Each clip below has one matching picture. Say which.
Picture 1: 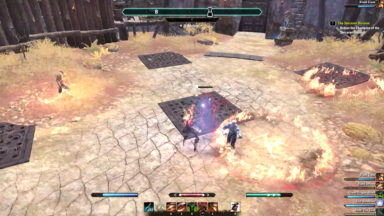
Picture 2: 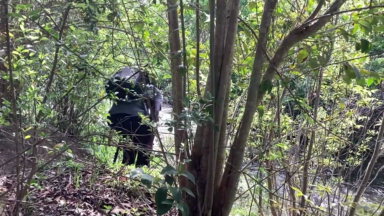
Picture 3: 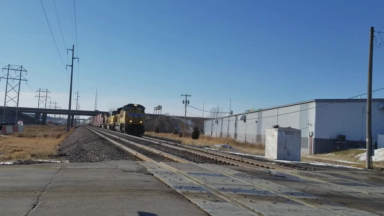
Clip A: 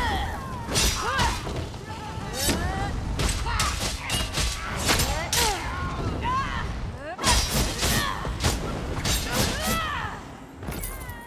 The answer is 1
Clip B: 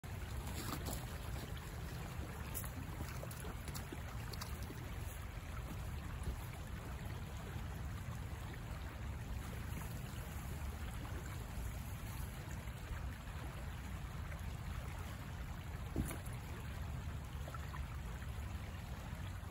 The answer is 2